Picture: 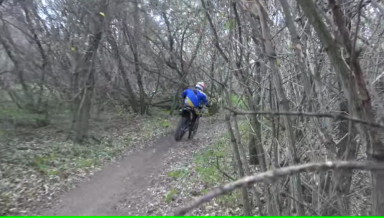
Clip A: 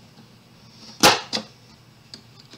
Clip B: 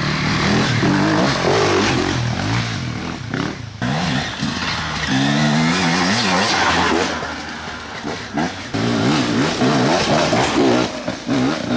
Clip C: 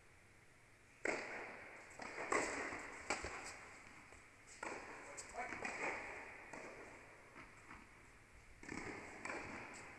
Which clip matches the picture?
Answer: B